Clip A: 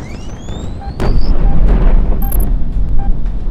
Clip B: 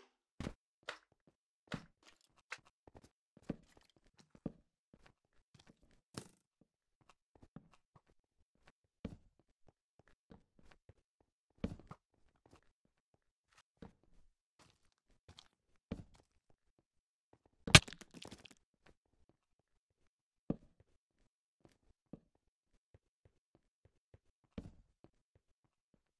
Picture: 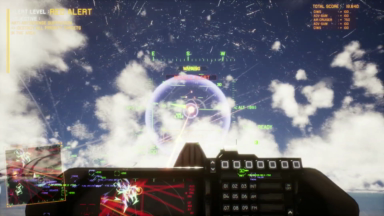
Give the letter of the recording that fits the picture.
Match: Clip A